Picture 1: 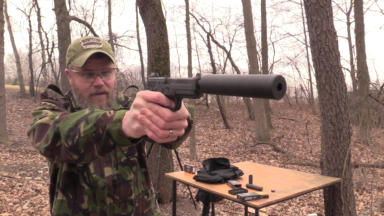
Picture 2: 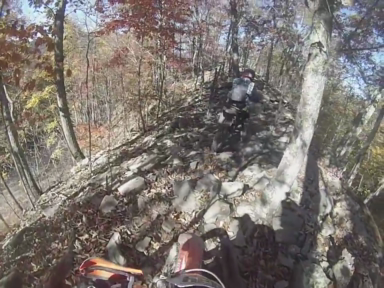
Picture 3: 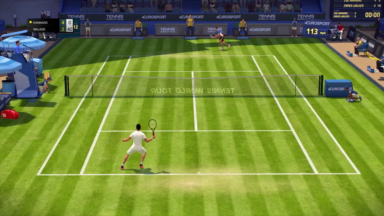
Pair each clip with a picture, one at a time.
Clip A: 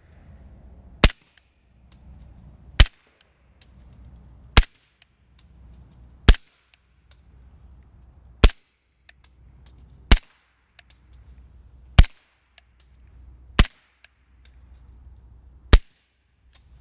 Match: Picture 1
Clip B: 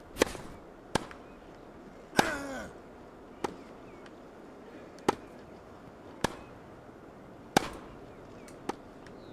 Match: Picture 3